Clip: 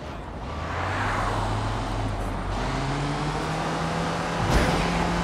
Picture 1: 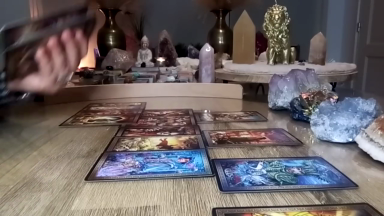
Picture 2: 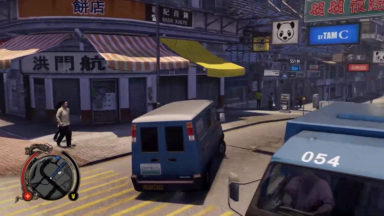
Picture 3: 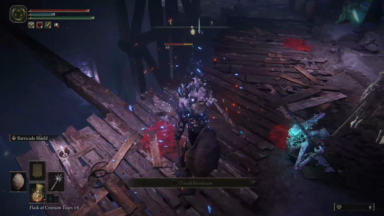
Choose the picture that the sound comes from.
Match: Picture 2